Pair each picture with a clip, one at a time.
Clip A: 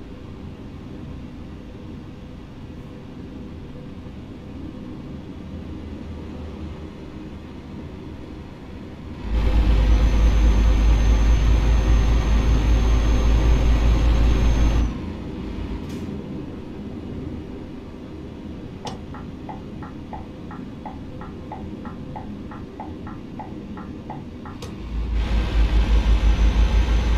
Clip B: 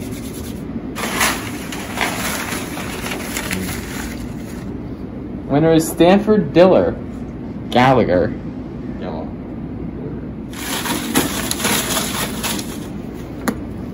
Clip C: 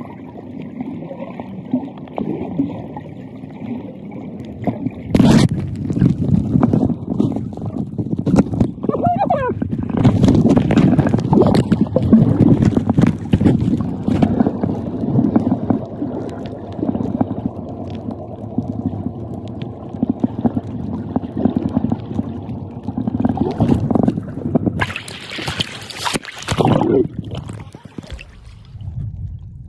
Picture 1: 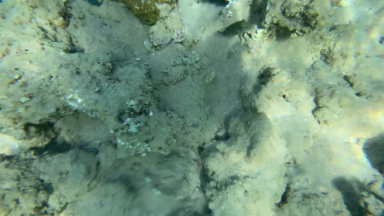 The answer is C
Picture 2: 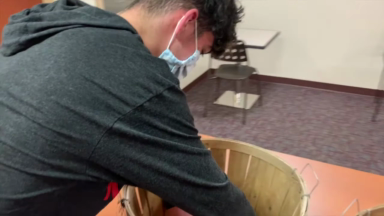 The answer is B